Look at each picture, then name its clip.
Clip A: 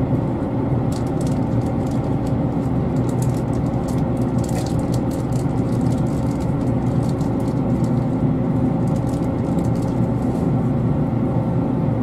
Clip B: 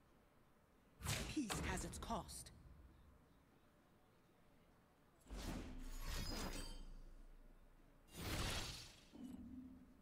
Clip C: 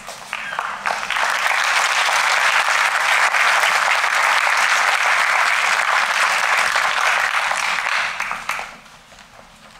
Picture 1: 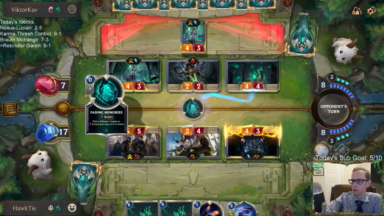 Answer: B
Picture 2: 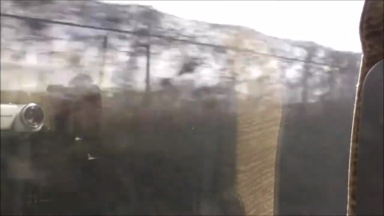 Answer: A